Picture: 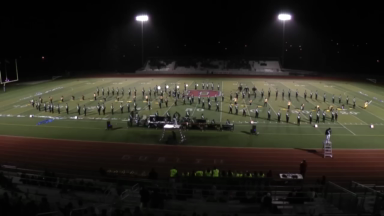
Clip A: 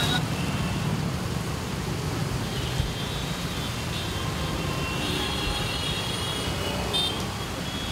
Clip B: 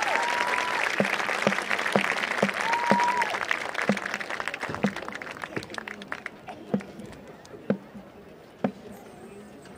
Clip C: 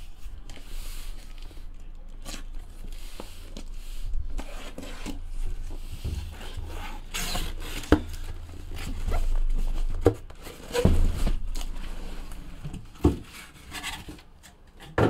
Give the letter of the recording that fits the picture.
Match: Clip B